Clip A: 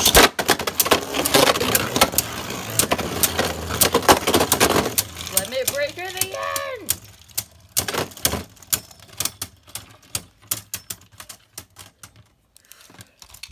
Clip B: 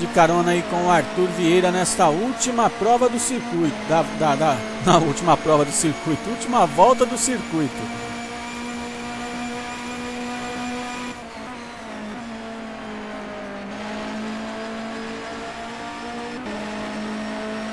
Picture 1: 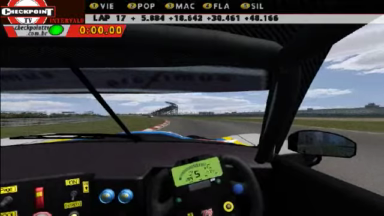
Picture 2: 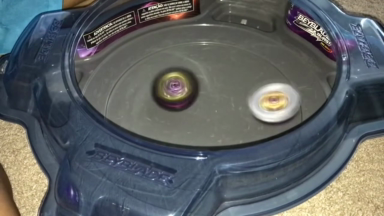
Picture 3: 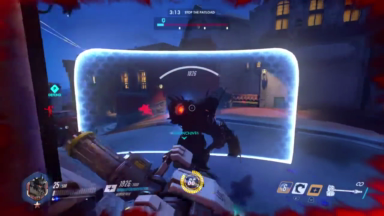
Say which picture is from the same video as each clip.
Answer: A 2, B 1